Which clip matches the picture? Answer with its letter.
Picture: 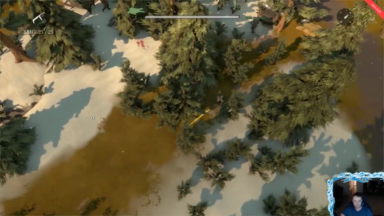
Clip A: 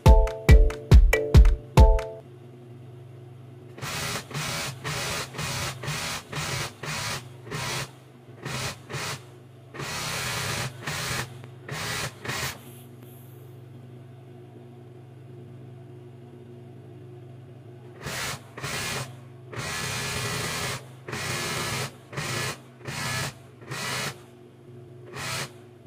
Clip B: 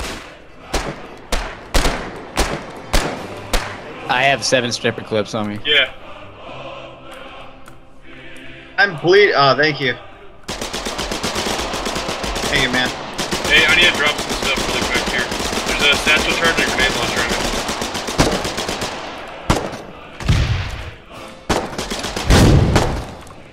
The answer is B